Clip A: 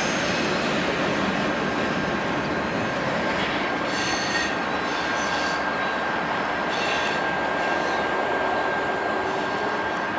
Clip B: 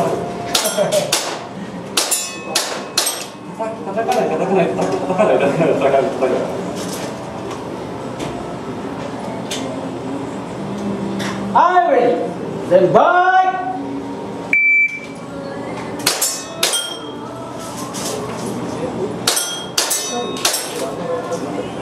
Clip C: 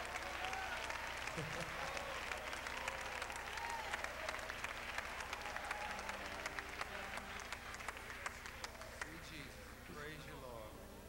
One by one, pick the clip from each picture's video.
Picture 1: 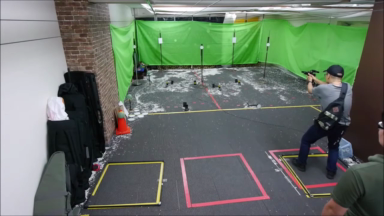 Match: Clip B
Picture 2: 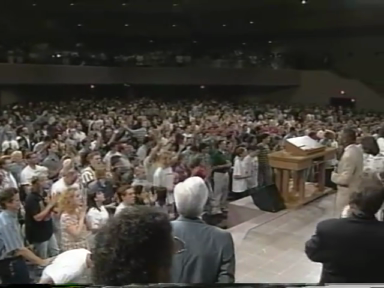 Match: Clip C